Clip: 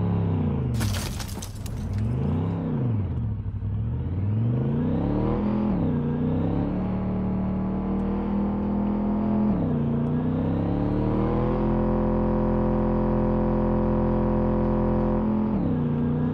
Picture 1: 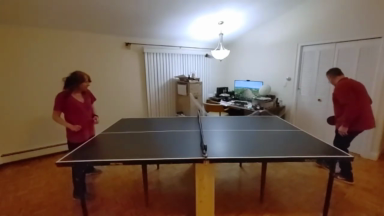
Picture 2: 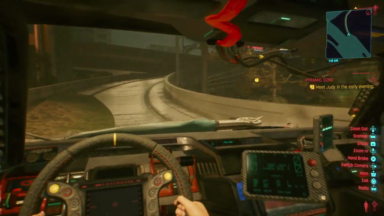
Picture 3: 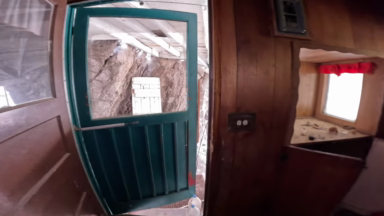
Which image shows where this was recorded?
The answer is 2